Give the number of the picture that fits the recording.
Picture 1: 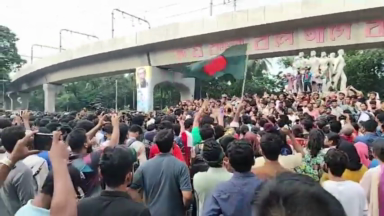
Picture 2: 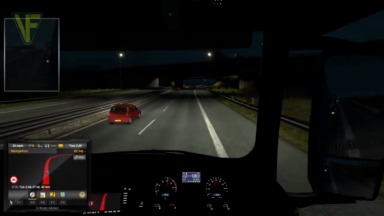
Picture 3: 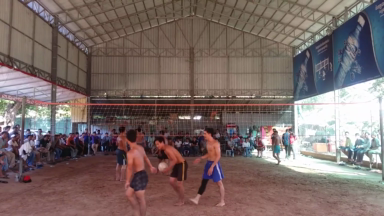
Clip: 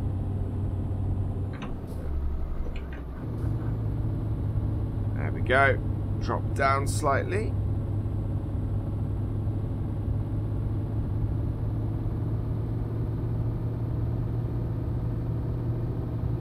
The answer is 2